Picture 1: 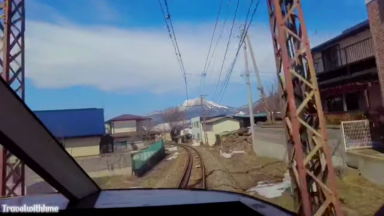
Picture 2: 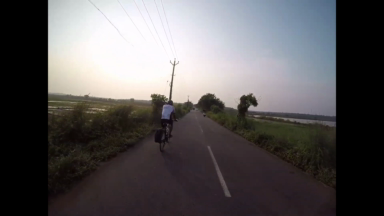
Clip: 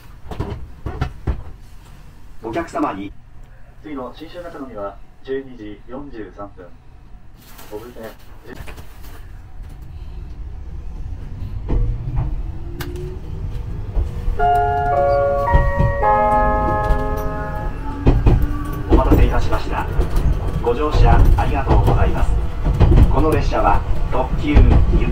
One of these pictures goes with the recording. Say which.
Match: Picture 1